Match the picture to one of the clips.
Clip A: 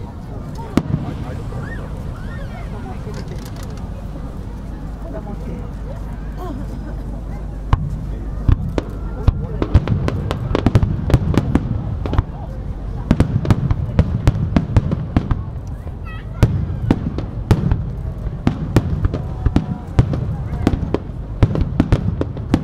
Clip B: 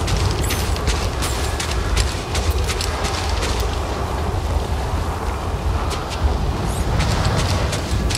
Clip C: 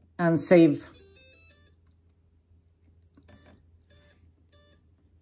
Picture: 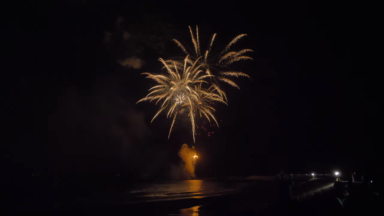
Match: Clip A